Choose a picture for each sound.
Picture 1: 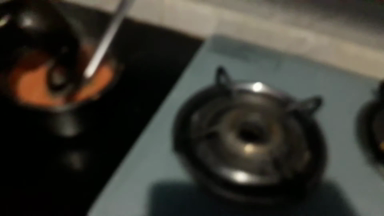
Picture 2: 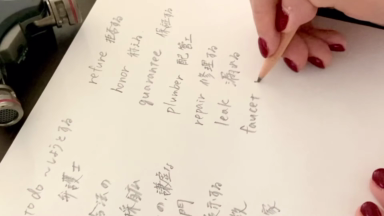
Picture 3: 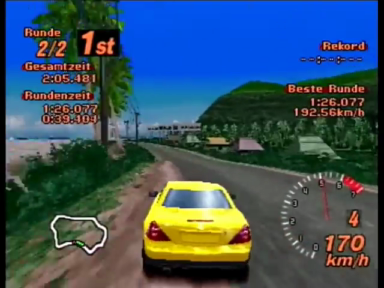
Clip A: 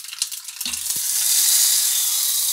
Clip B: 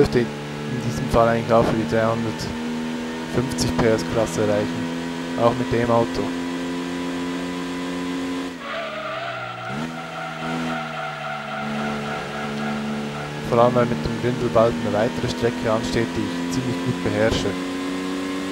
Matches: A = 1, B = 3